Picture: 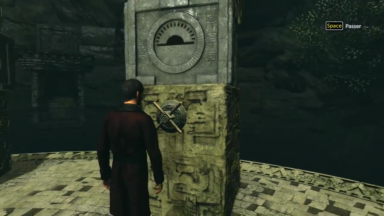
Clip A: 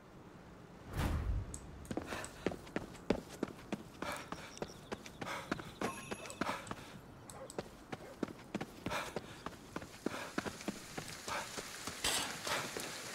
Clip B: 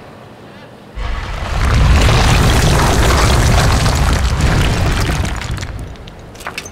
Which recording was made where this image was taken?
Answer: B